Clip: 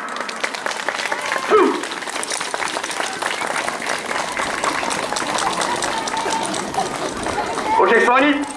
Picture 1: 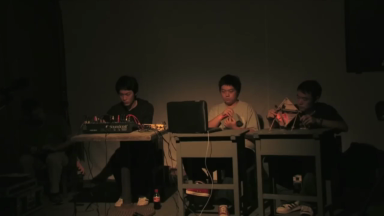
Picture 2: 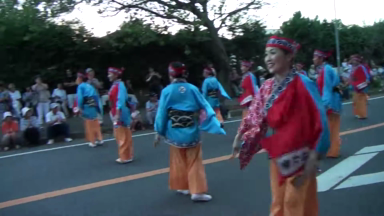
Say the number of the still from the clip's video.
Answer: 2